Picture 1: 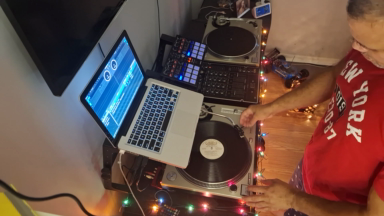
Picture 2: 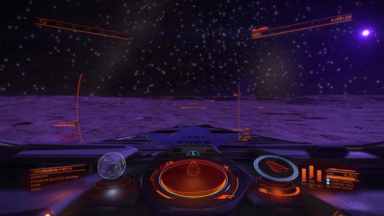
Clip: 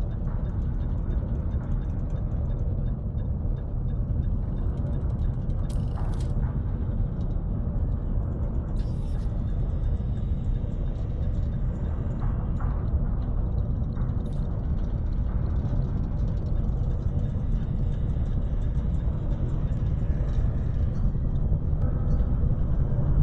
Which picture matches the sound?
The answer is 2